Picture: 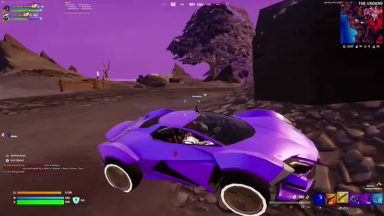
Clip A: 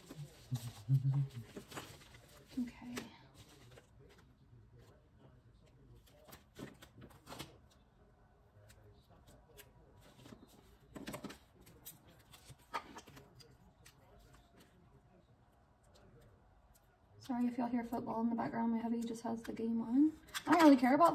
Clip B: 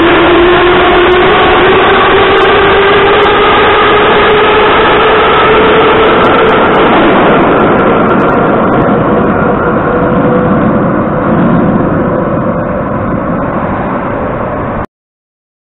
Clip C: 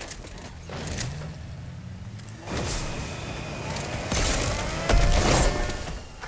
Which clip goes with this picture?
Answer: C